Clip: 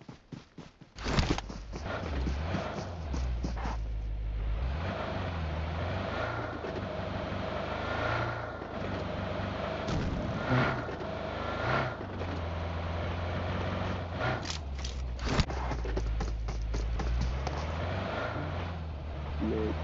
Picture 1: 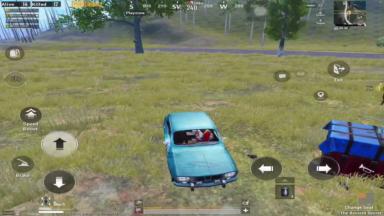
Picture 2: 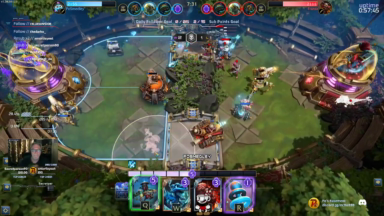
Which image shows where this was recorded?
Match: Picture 1